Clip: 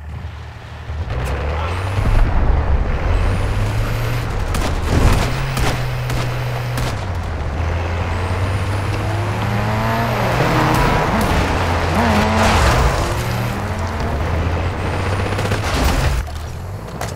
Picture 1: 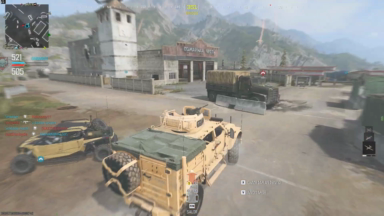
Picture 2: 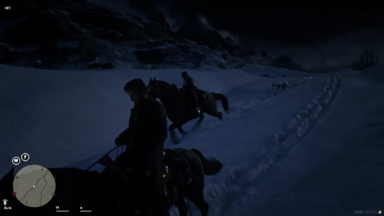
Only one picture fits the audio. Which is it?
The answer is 1